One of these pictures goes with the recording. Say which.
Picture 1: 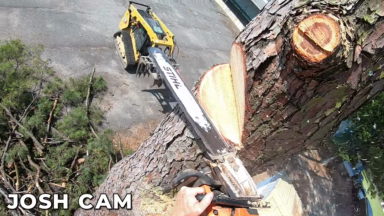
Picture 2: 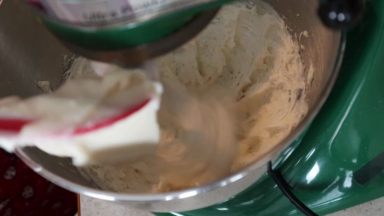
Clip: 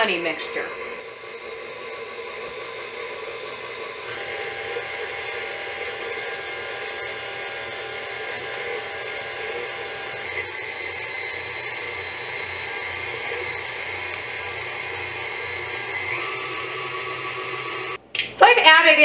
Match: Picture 2